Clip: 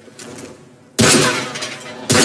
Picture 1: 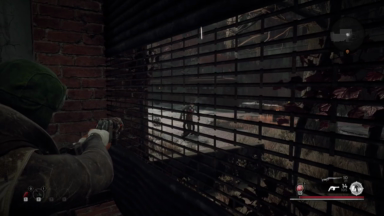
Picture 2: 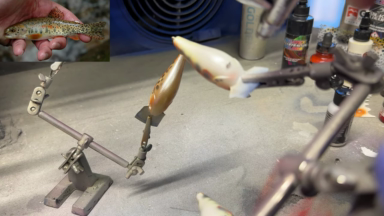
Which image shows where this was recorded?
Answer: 1